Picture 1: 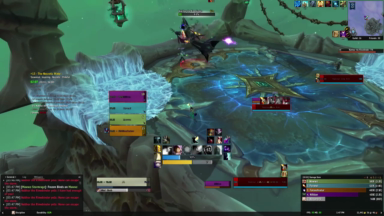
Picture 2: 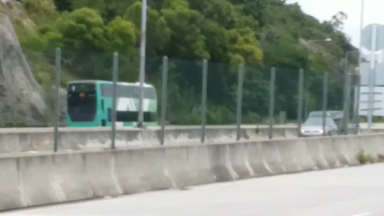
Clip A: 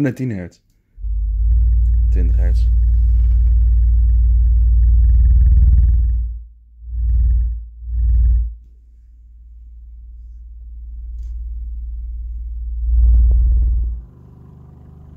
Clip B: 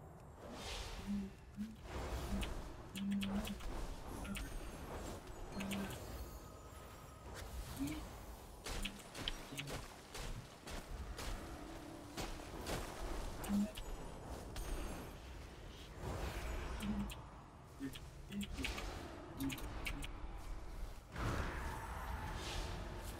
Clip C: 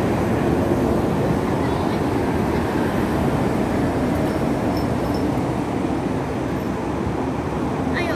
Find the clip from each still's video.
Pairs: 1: B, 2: C